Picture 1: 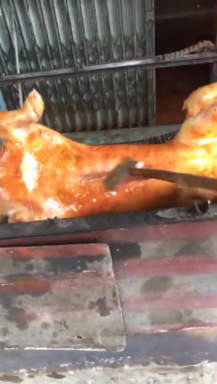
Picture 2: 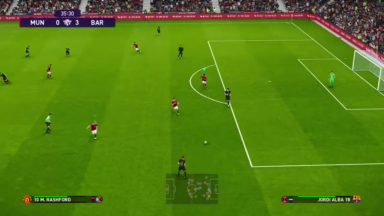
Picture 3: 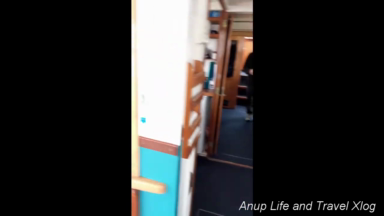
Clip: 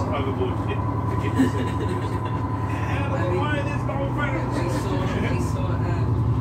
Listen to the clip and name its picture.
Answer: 3